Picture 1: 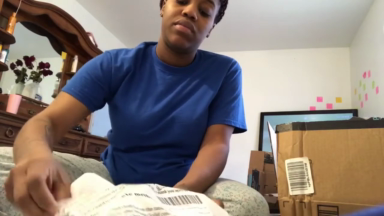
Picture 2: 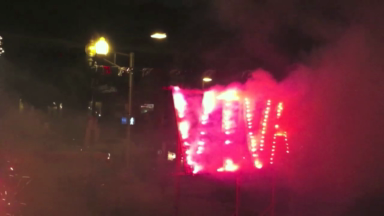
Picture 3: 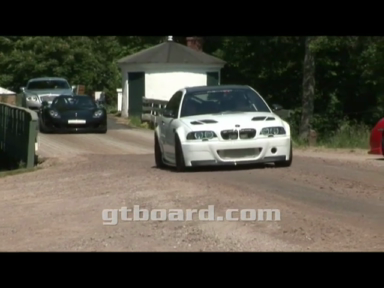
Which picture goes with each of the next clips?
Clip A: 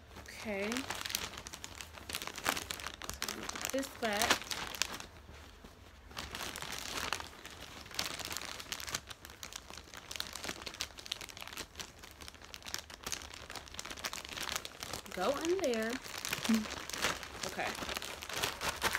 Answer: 1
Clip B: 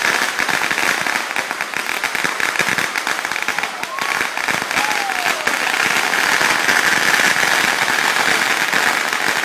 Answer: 2